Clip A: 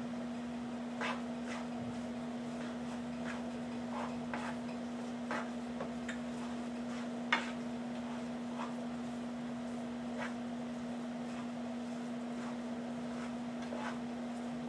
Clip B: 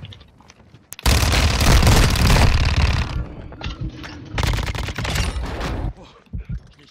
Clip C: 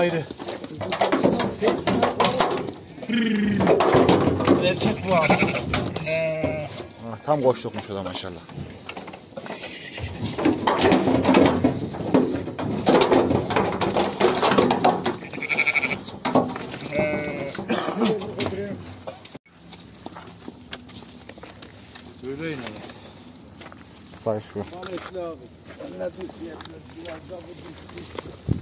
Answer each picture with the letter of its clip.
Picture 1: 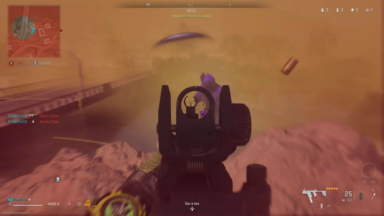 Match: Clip B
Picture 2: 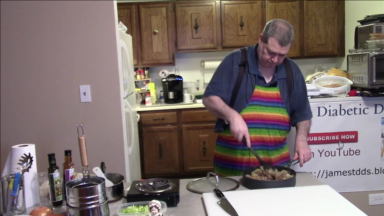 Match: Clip A